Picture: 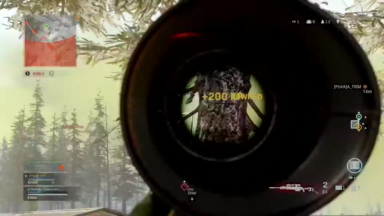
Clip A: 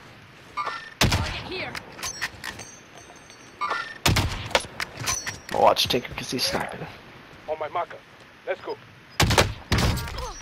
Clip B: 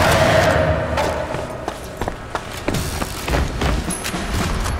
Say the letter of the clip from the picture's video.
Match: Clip A